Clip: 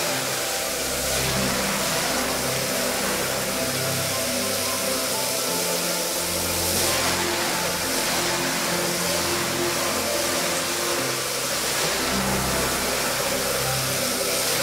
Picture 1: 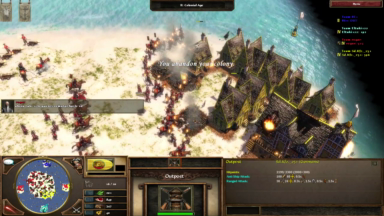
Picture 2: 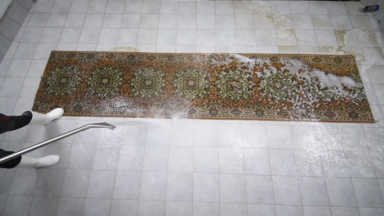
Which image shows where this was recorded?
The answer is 2